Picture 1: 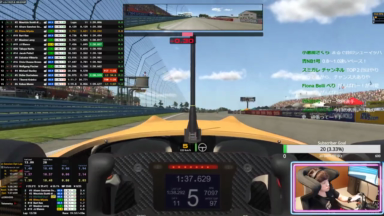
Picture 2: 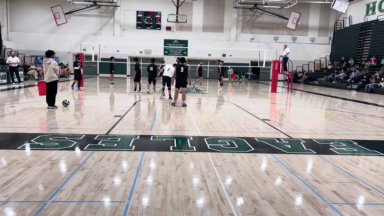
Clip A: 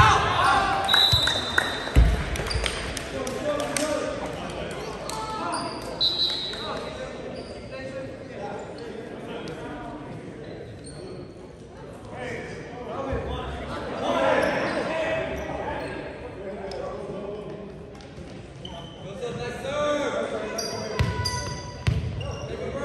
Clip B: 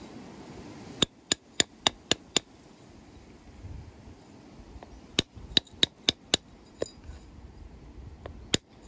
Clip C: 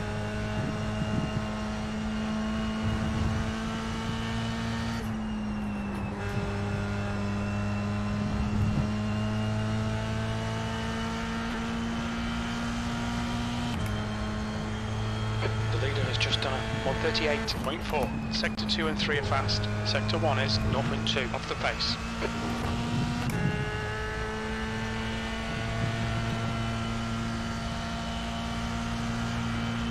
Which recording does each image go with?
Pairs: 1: C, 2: A